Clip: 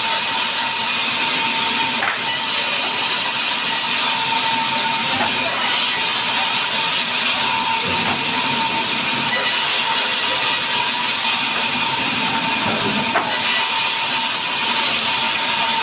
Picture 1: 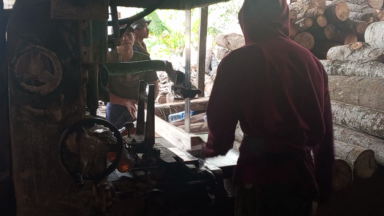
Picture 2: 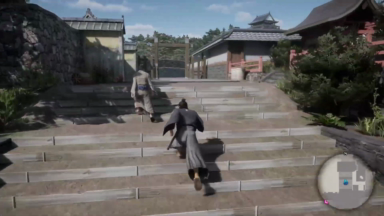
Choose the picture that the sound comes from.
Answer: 1